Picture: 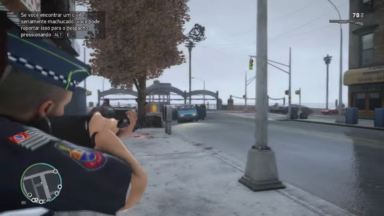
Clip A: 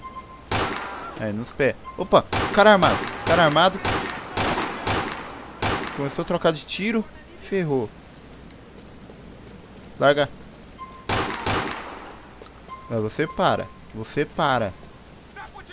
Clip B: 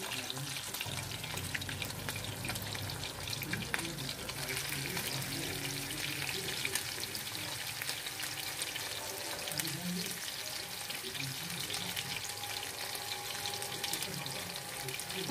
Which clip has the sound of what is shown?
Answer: A